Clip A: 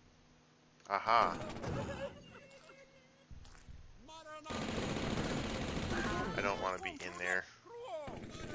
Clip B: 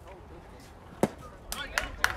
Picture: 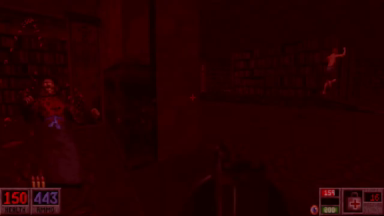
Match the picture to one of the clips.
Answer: A